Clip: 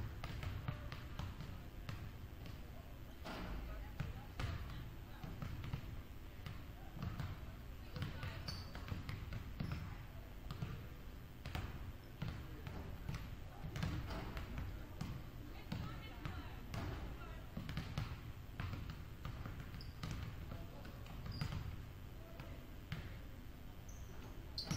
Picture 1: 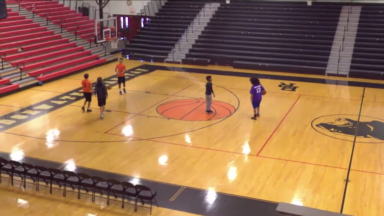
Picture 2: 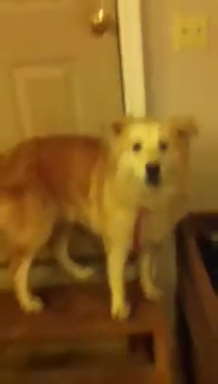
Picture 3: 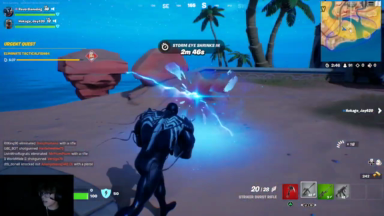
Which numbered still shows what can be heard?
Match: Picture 1